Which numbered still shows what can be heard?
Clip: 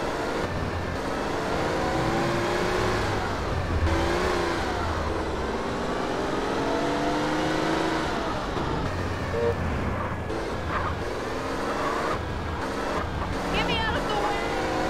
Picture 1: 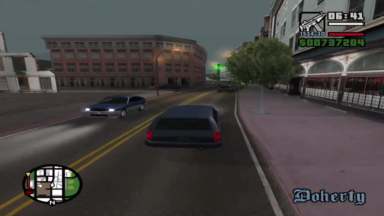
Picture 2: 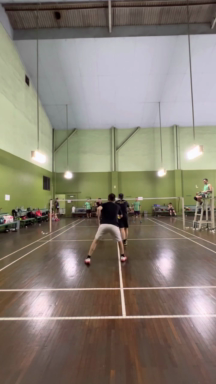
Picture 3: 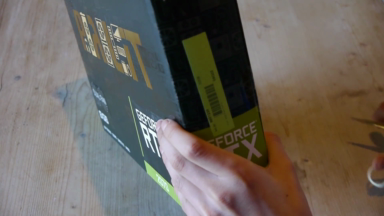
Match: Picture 1